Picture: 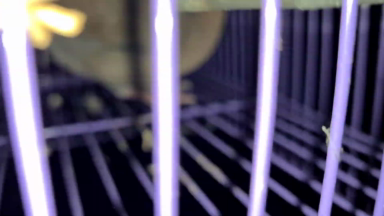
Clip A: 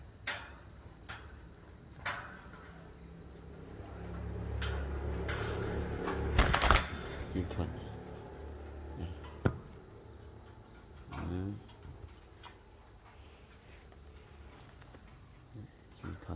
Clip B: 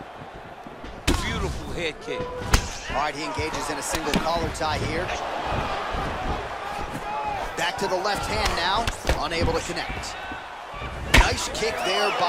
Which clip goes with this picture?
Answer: A